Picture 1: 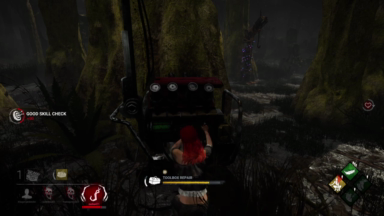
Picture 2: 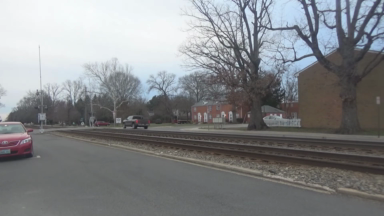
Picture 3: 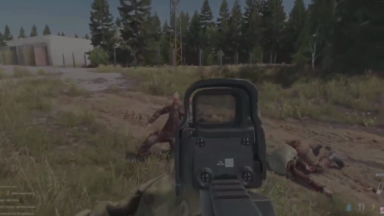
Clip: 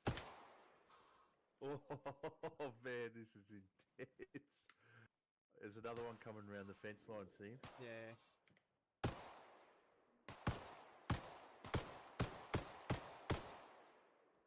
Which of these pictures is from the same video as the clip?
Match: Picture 3